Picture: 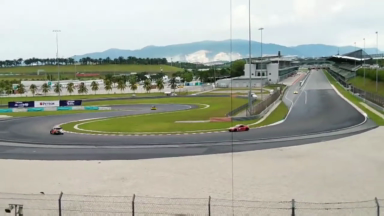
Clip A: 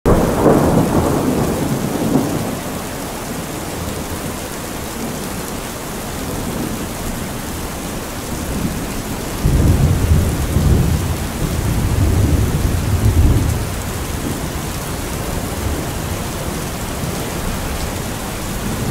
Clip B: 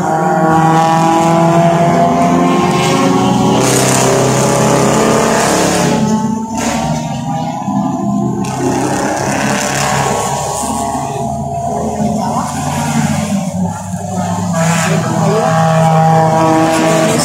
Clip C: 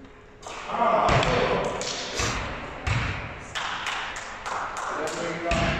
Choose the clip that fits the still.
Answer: B